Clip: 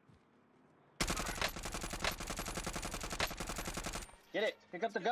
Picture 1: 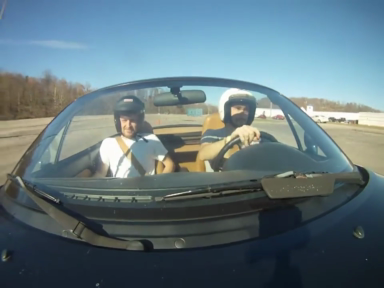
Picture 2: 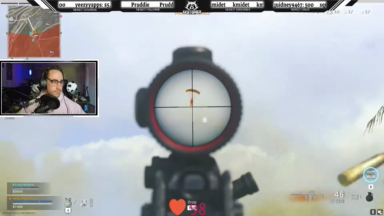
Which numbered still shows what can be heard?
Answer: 2